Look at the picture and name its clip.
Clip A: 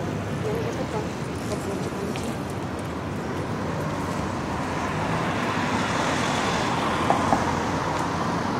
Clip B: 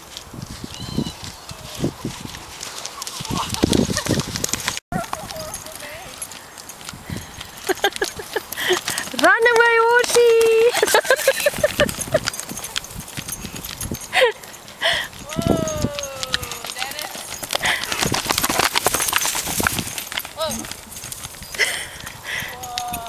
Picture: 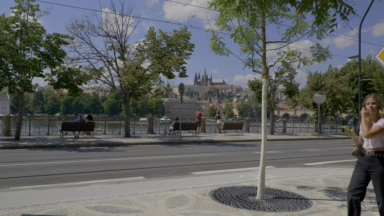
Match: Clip A